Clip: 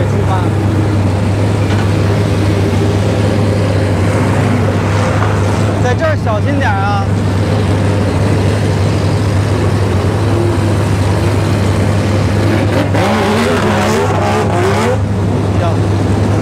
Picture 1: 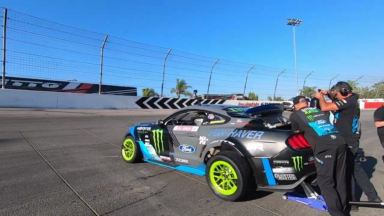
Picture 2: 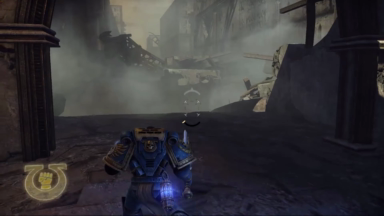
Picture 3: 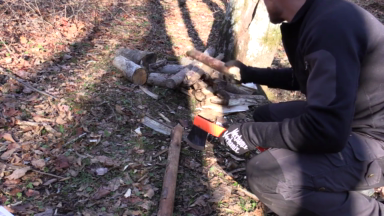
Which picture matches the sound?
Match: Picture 1